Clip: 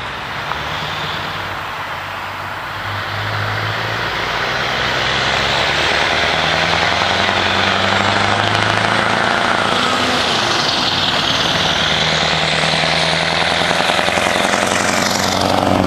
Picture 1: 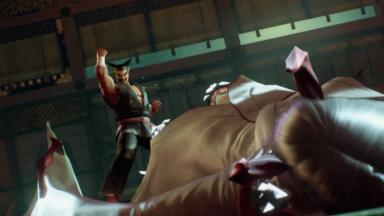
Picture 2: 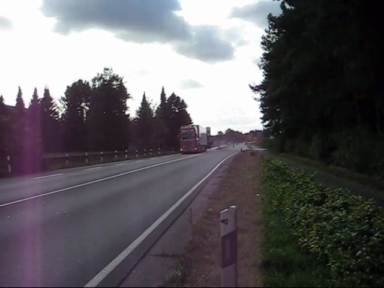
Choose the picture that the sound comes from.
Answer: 2